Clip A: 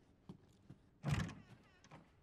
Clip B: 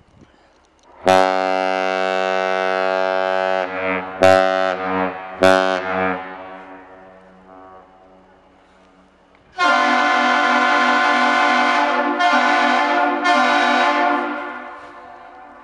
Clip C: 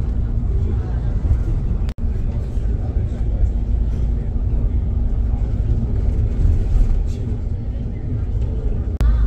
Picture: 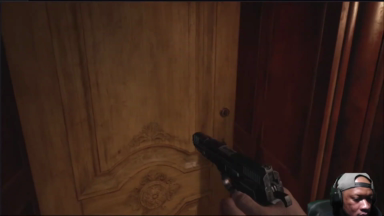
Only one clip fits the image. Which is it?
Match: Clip A